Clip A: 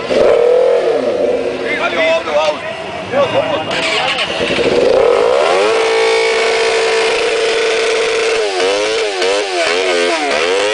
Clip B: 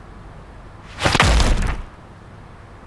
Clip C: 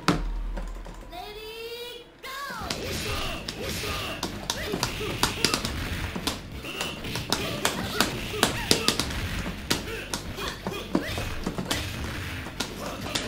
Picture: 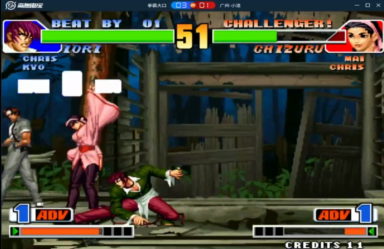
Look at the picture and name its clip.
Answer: C